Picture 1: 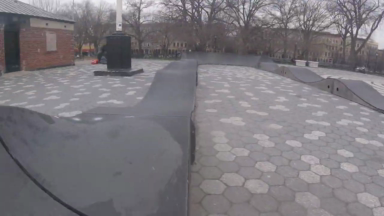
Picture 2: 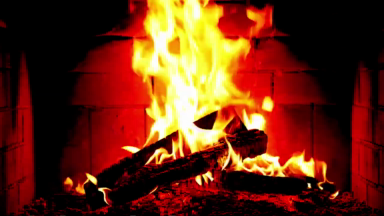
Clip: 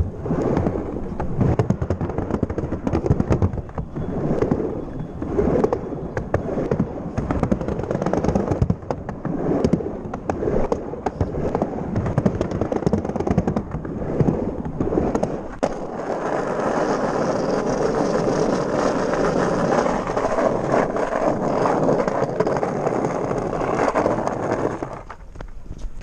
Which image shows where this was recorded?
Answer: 1